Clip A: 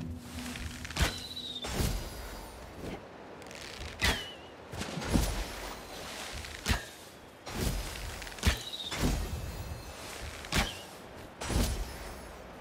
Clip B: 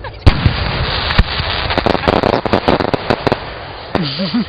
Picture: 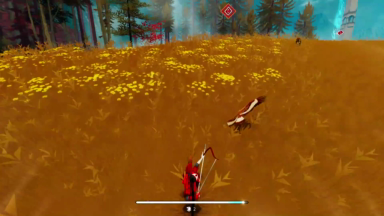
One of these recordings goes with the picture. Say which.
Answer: A